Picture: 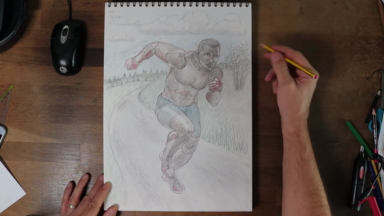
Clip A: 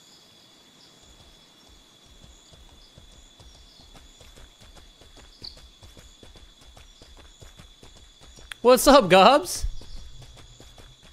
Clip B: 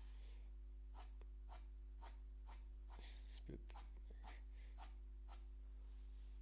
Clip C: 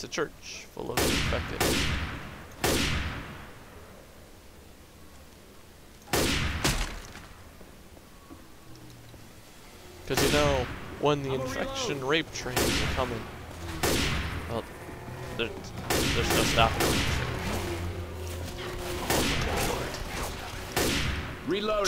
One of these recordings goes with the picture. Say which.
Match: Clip B